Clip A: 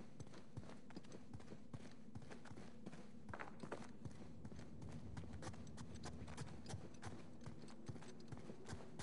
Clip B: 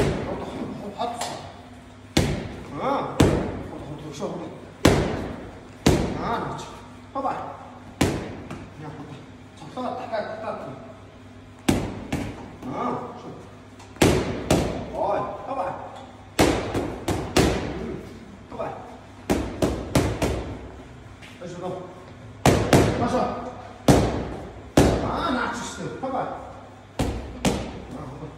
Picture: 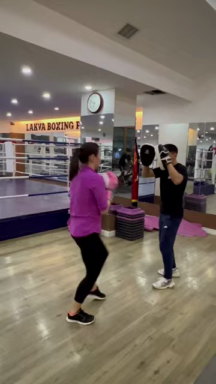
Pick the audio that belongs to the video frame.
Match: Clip B